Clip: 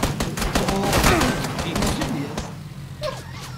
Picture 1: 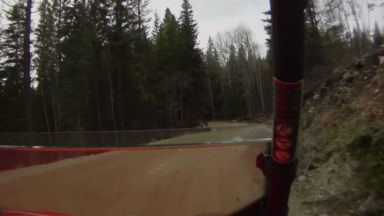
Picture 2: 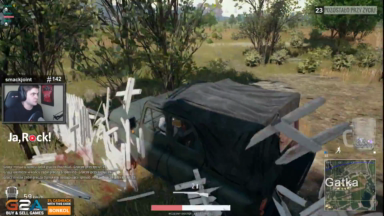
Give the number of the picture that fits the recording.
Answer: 2